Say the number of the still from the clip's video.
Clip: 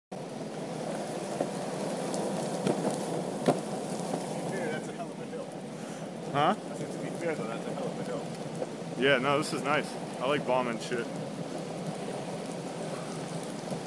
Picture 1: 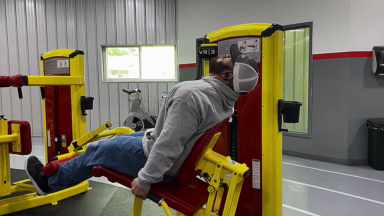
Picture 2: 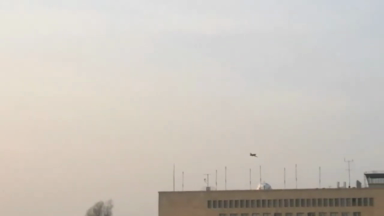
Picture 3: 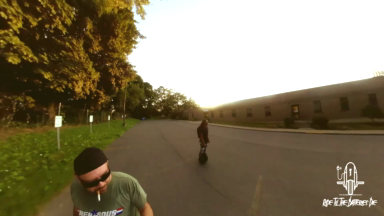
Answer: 3